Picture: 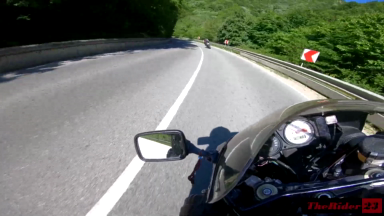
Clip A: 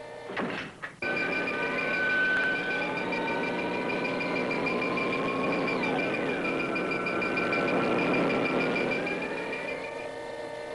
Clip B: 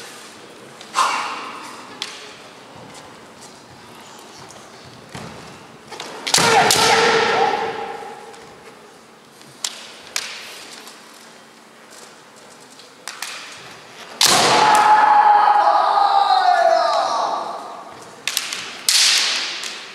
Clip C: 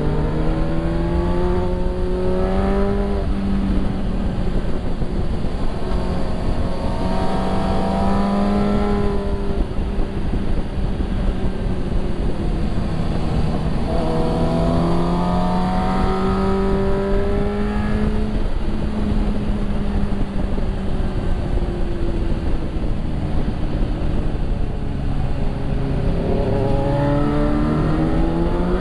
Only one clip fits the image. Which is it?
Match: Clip C